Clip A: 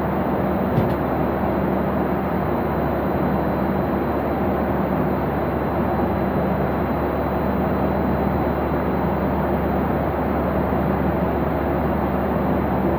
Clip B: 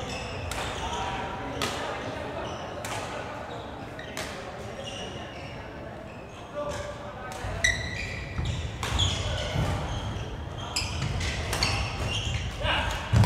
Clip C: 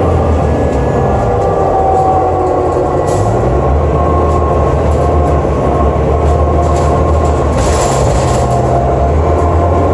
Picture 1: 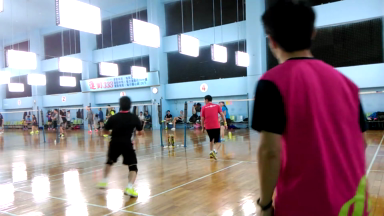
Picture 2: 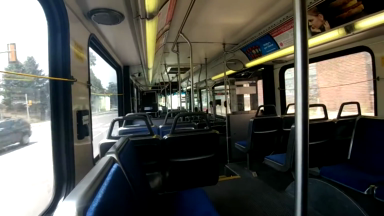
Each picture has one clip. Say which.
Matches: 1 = B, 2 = C